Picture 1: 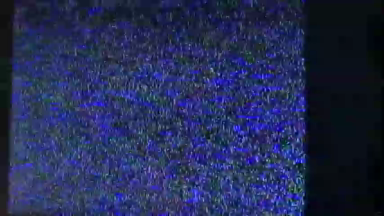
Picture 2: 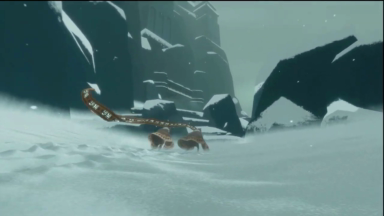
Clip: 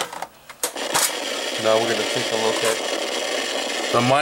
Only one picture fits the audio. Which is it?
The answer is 1